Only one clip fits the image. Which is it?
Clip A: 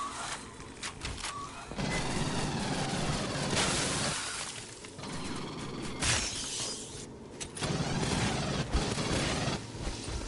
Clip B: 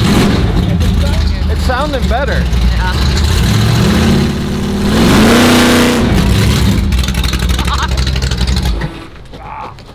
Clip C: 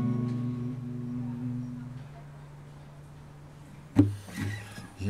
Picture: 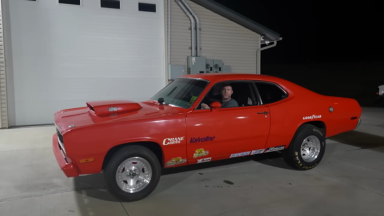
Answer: B